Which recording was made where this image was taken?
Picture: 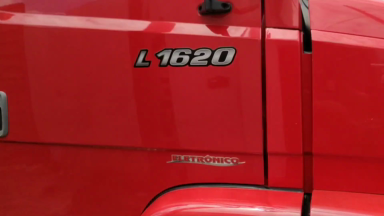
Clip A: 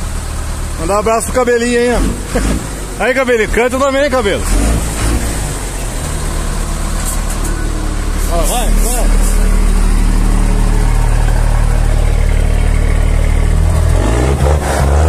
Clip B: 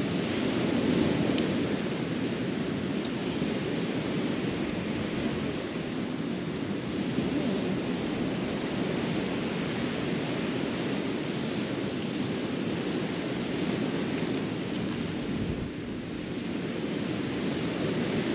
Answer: A